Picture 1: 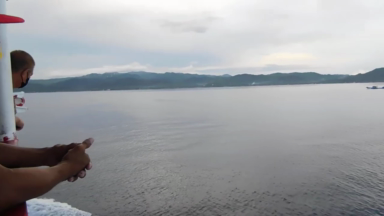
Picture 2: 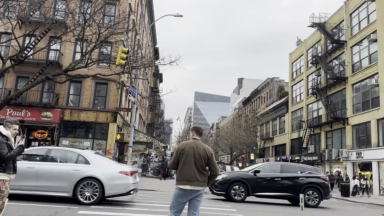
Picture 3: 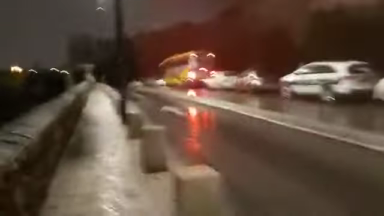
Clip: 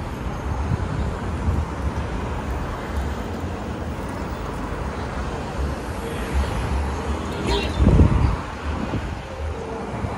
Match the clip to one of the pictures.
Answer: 2